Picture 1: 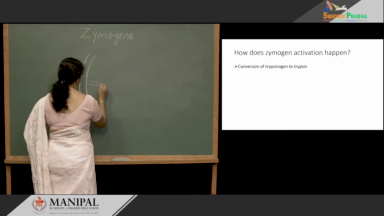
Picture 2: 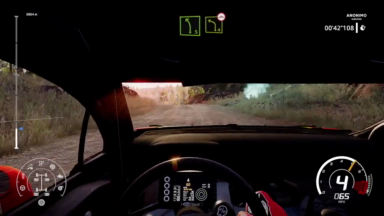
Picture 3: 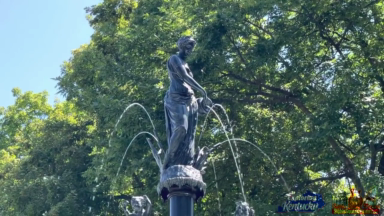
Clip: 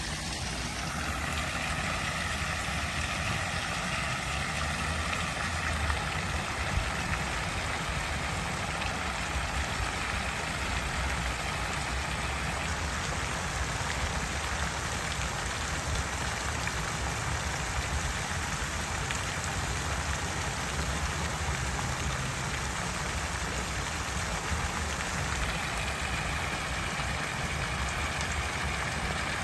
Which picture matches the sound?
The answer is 3